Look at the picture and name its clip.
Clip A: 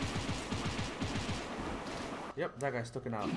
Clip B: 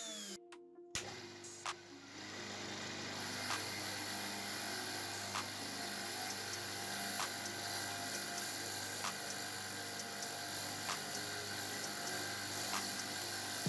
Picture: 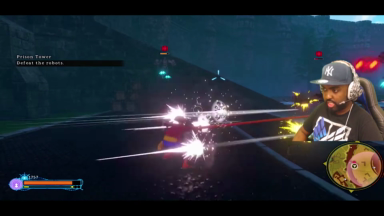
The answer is A